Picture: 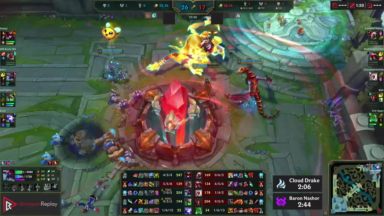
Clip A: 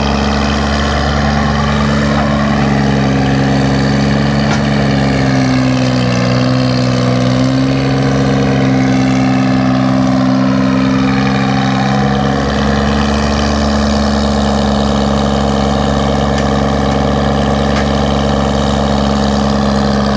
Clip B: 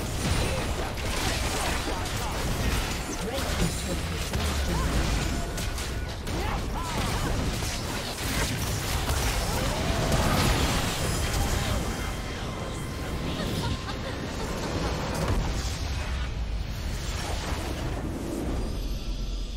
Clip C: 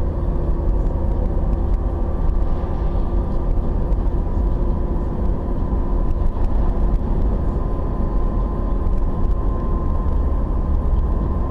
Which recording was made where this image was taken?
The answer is B